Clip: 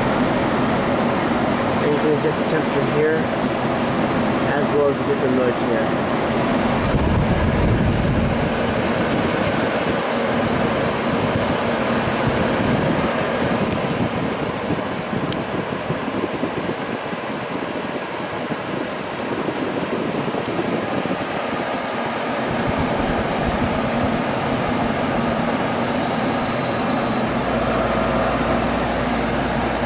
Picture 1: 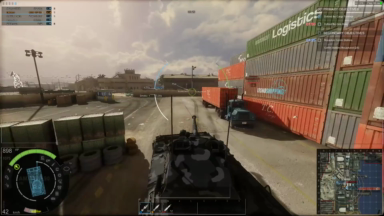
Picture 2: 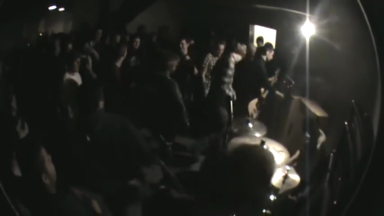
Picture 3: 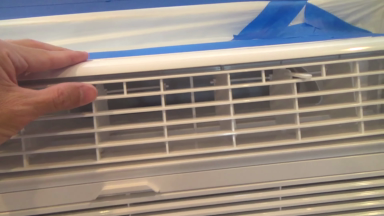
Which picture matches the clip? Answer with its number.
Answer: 3